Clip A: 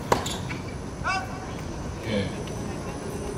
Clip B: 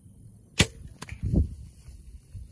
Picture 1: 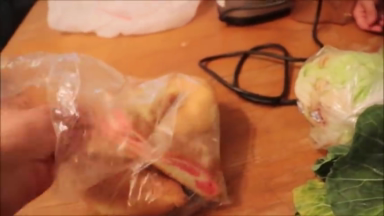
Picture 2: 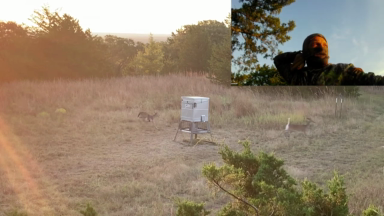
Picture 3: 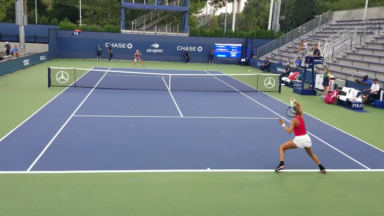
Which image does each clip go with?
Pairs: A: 3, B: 2